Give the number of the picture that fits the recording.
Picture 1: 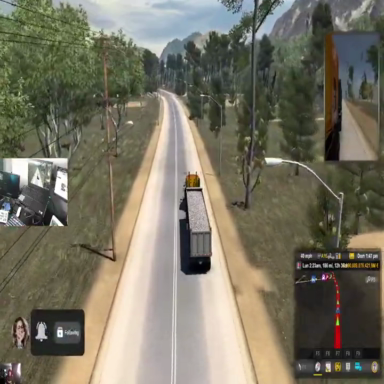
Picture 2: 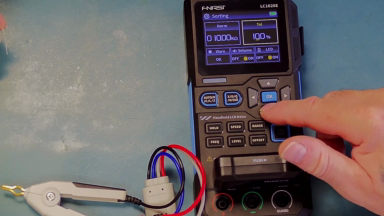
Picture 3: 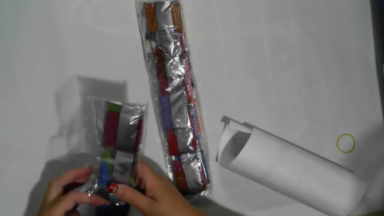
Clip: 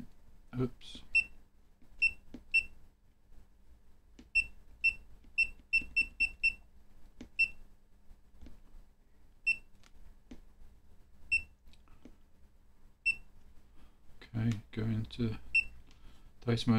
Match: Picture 2